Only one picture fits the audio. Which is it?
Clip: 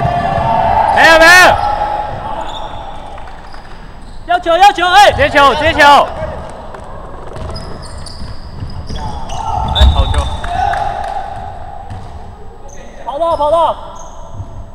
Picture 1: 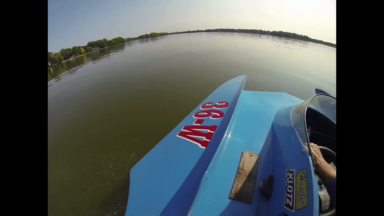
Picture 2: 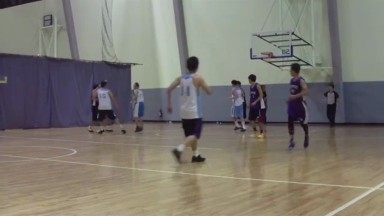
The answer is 2